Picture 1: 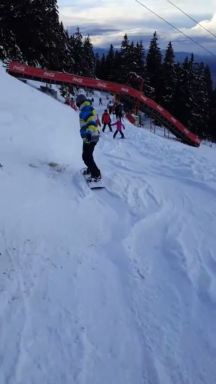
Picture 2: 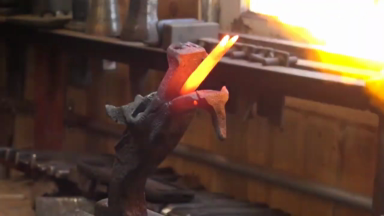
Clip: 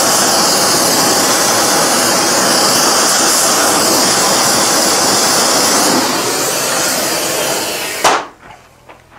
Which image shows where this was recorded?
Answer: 2